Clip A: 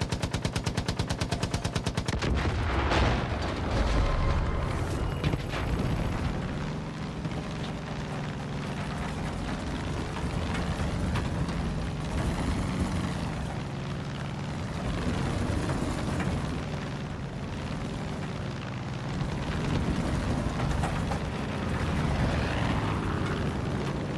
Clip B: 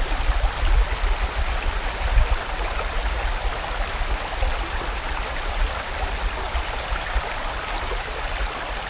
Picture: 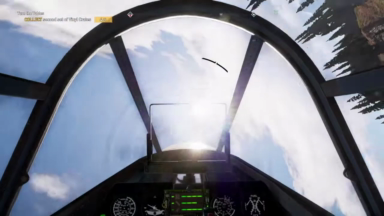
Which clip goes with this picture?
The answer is A